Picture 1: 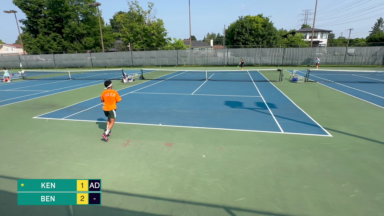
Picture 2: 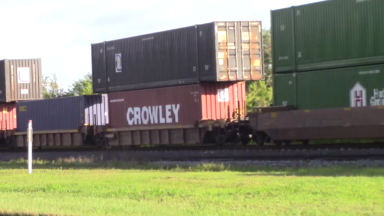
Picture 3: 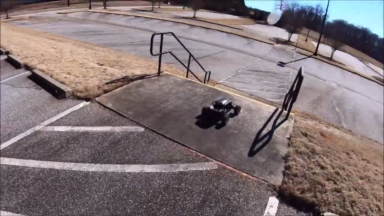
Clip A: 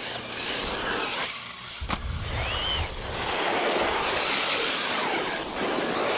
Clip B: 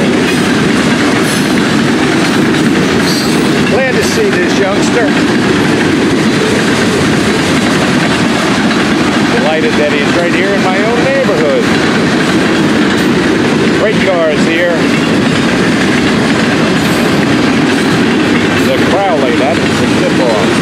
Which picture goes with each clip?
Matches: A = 3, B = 2